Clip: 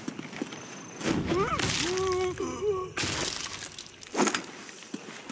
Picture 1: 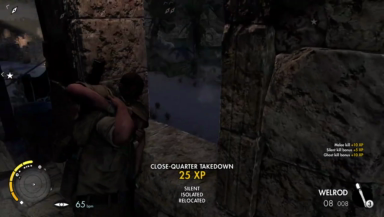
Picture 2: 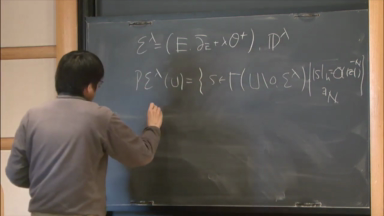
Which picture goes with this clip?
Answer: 1